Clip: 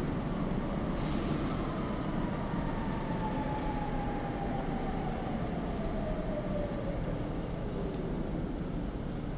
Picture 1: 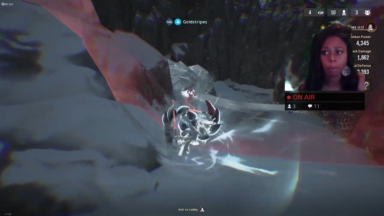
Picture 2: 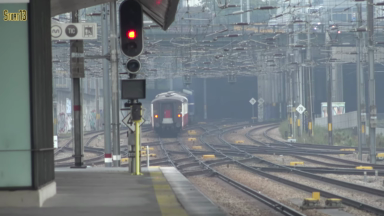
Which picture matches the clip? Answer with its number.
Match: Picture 2